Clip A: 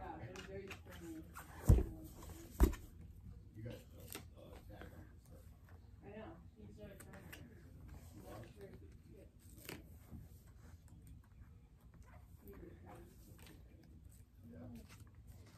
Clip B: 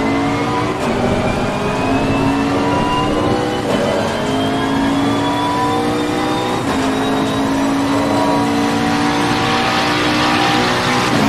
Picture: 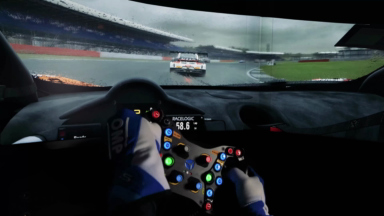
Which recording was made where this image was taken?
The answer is B